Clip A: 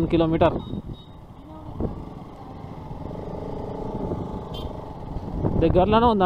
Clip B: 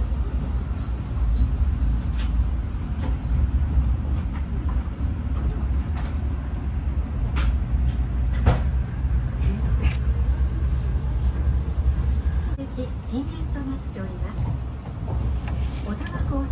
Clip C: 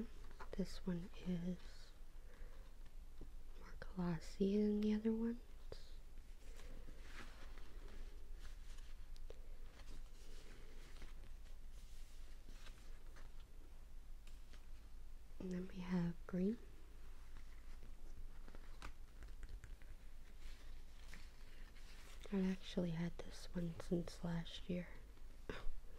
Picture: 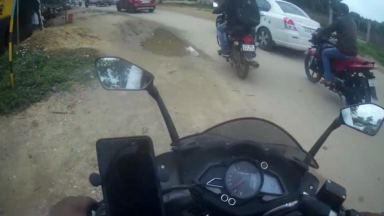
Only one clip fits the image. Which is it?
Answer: A